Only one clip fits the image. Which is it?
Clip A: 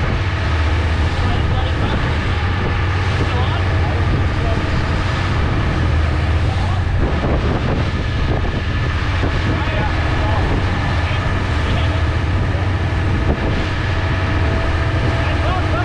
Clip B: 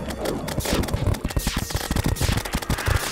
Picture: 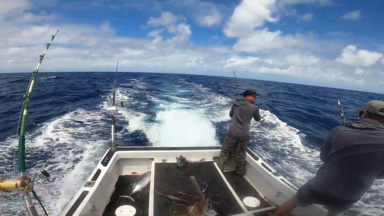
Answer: A